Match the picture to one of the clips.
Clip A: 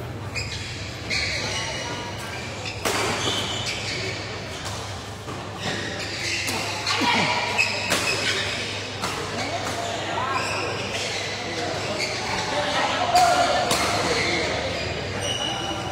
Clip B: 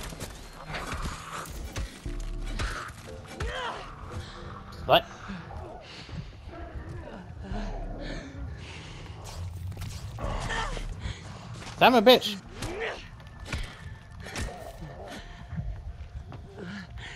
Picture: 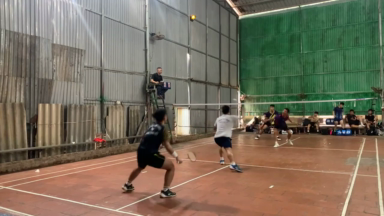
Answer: A